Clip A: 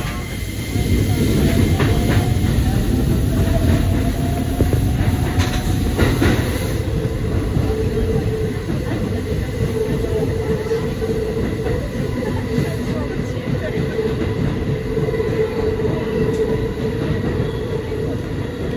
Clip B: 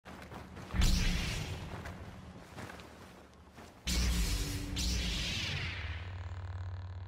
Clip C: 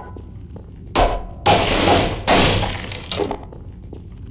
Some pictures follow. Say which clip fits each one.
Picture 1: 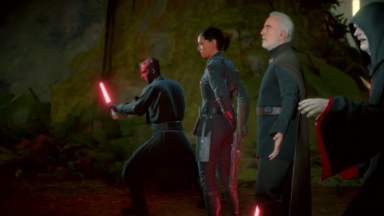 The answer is B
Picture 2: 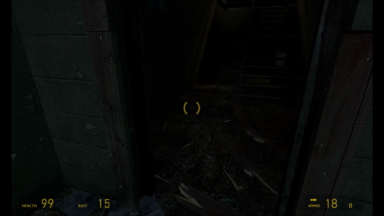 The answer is C